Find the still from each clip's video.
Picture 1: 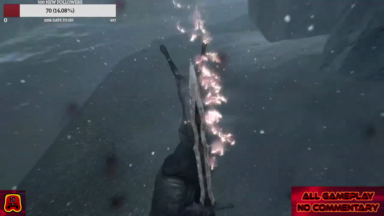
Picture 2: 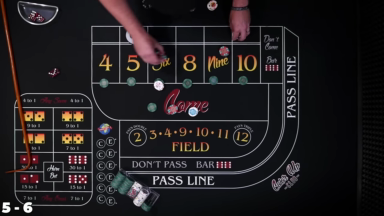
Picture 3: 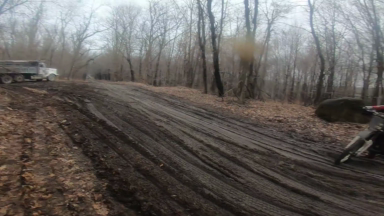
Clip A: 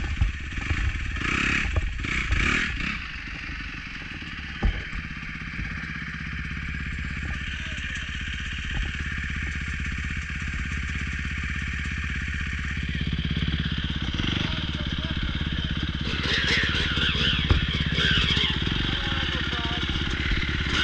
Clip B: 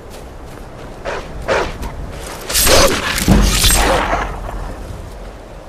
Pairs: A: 3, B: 1